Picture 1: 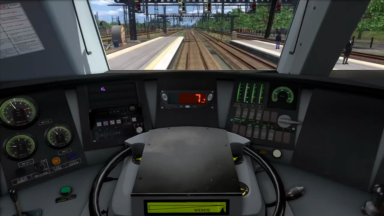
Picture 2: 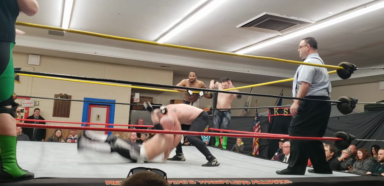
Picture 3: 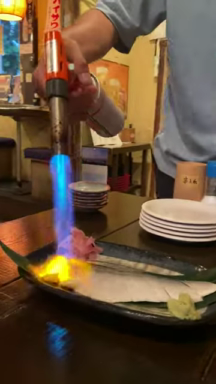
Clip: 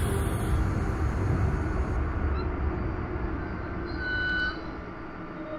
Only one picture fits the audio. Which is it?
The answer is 1